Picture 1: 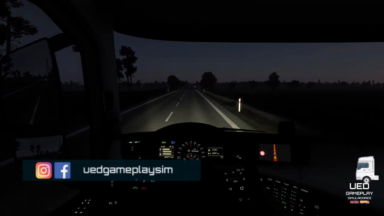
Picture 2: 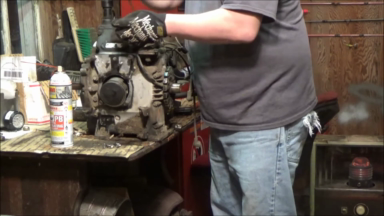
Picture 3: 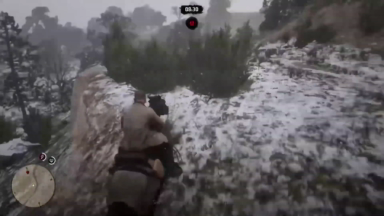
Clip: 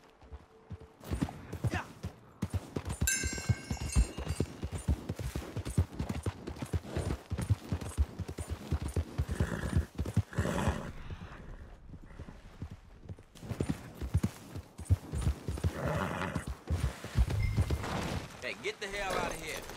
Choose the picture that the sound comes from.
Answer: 3